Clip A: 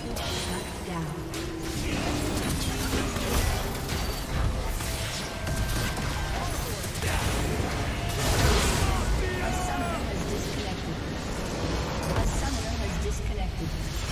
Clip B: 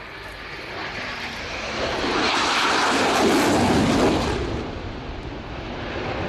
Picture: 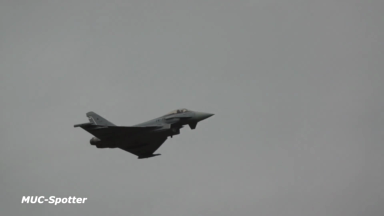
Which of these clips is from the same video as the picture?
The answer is B